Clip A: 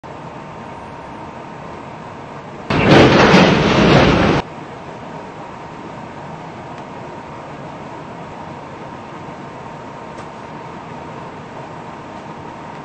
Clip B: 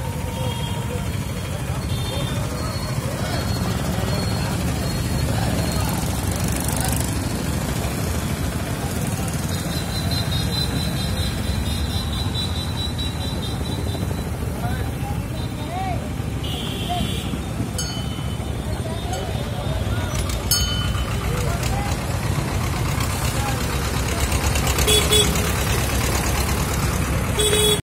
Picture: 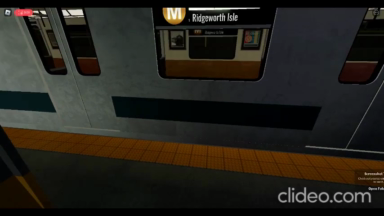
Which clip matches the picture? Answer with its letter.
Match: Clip A